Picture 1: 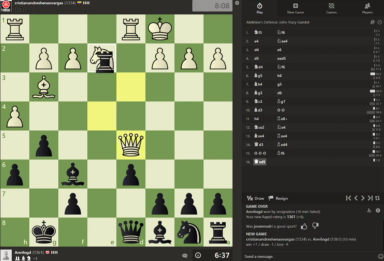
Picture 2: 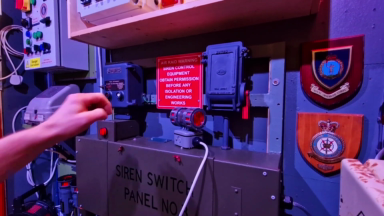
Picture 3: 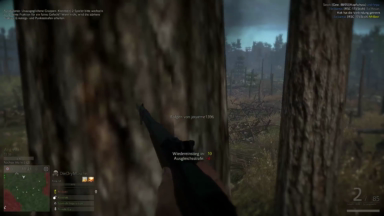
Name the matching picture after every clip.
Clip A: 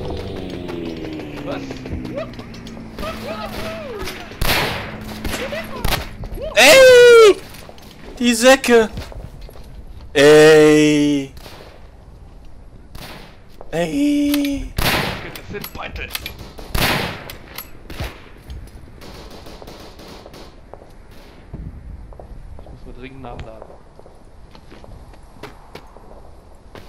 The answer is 3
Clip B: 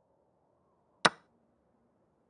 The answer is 1